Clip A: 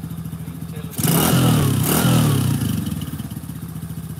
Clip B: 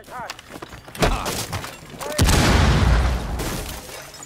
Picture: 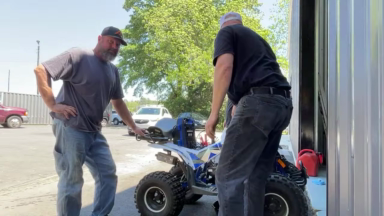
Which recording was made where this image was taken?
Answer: A